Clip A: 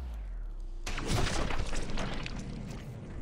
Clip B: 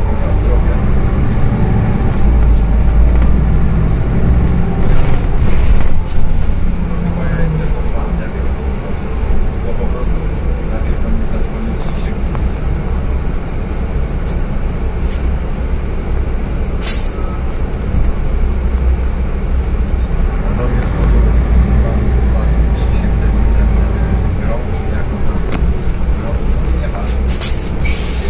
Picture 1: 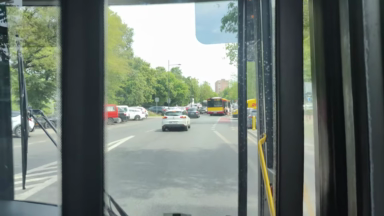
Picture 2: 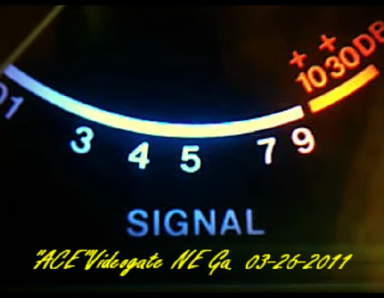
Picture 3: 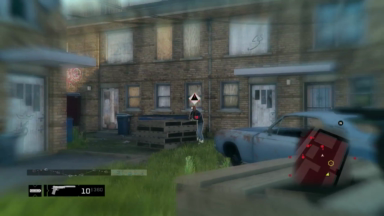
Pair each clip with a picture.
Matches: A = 3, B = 1